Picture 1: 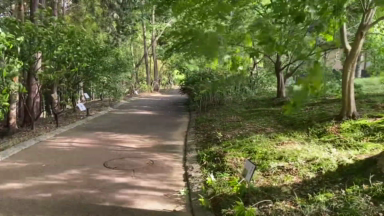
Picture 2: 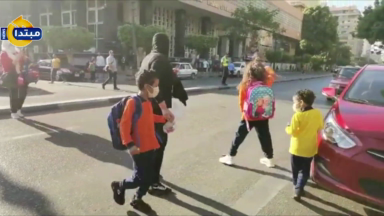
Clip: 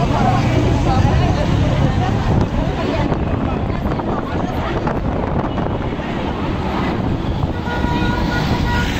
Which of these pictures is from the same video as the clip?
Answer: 2